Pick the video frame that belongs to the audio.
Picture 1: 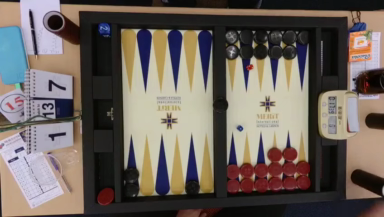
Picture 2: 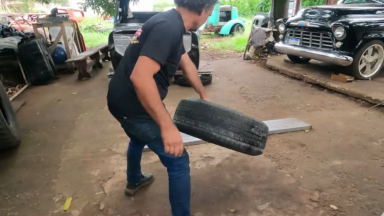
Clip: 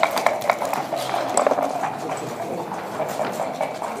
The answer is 1